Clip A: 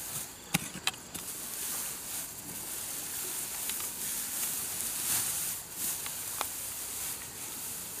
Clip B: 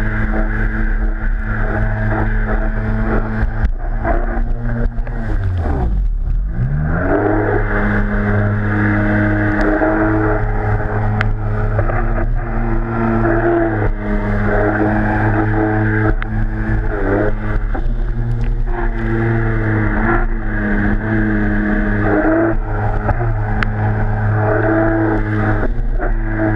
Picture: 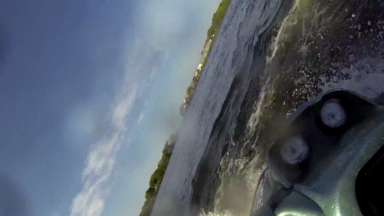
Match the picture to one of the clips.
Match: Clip B